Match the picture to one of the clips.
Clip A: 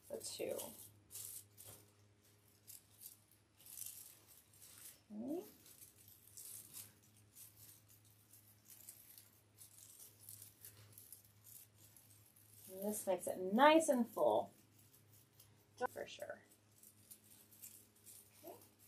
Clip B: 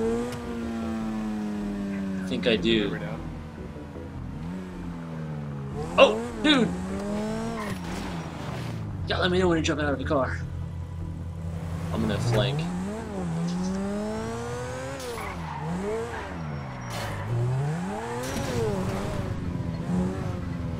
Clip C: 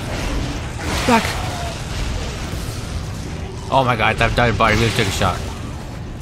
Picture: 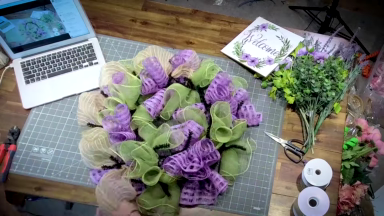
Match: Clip A